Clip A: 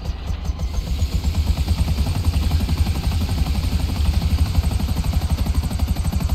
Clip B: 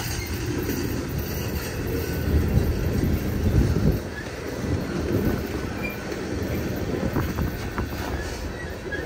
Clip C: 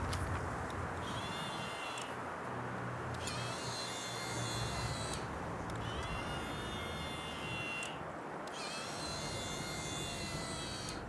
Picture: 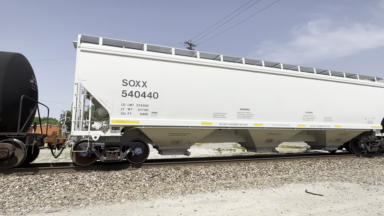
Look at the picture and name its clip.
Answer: B